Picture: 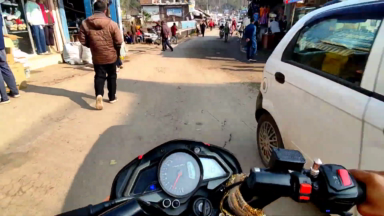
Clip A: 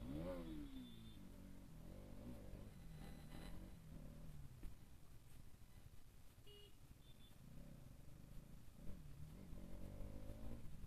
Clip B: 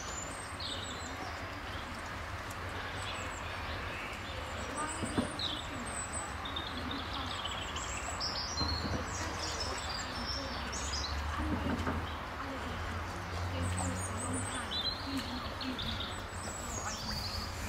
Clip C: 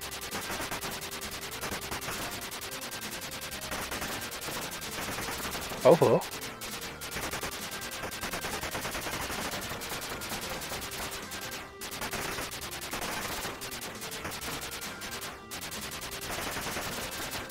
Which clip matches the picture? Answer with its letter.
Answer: A